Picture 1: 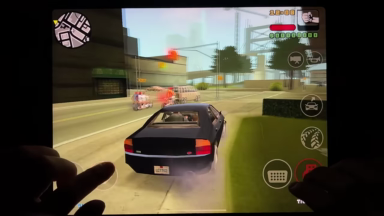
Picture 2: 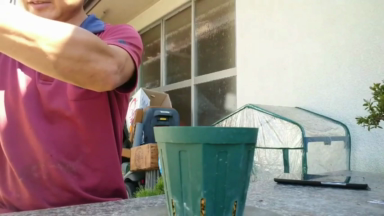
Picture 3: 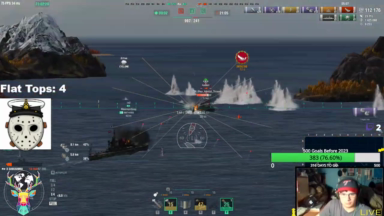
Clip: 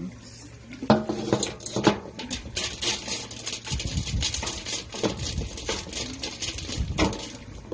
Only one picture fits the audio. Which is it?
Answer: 2